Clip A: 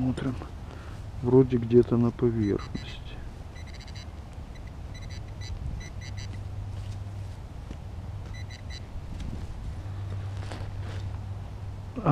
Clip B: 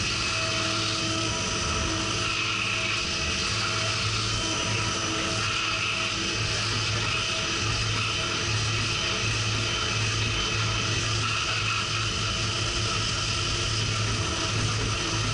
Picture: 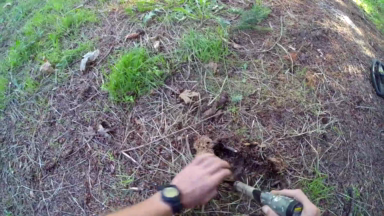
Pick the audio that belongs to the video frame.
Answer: A